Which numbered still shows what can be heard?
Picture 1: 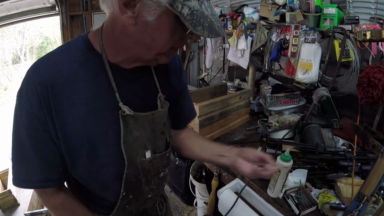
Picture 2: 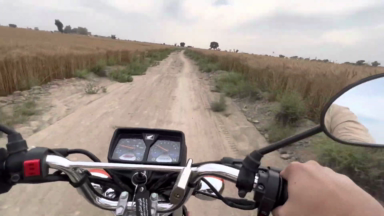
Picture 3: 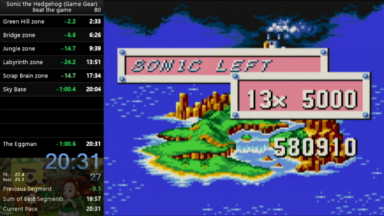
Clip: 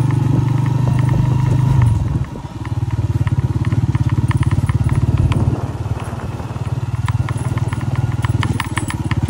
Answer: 2